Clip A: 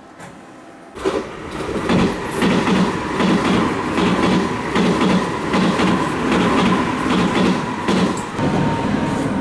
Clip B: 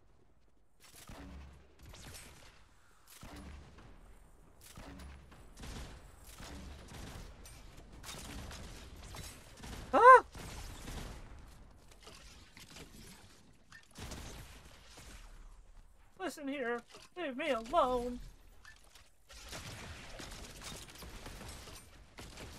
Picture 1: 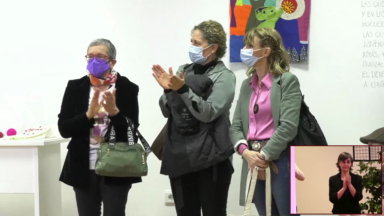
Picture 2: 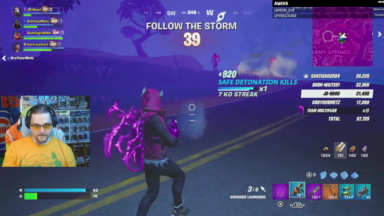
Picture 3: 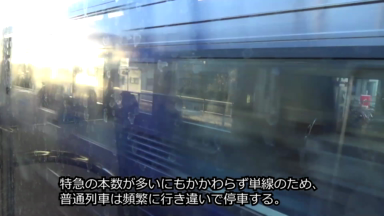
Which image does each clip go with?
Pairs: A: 3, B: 2